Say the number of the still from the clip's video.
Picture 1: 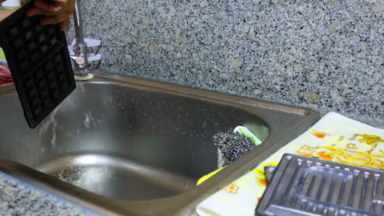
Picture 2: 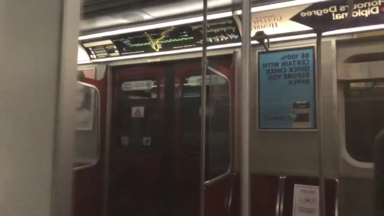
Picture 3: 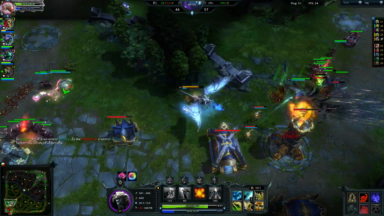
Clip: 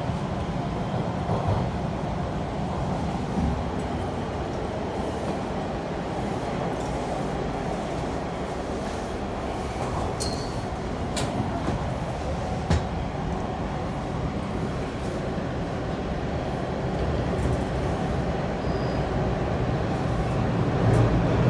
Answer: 2